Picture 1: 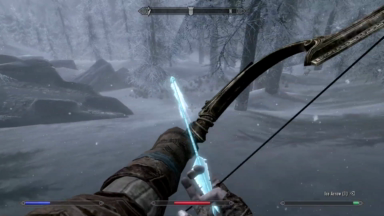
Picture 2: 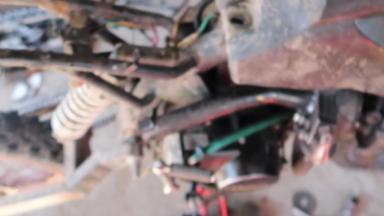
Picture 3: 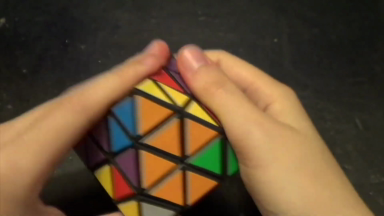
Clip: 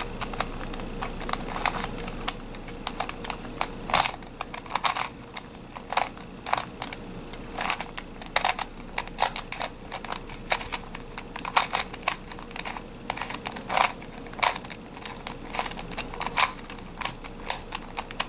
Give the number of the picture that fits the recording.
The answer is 3